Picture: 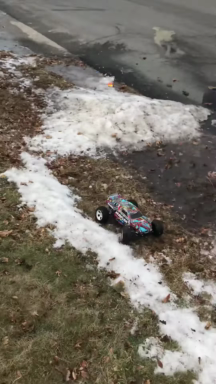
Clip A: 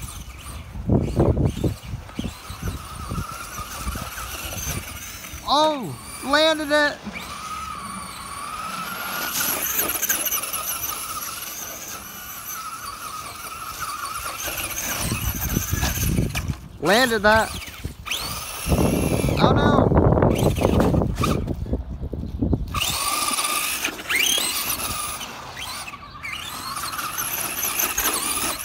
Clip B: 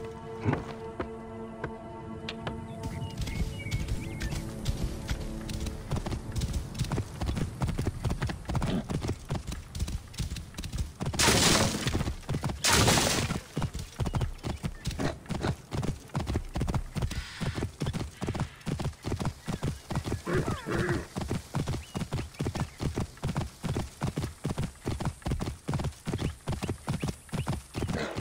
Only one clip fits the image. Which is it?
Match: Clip A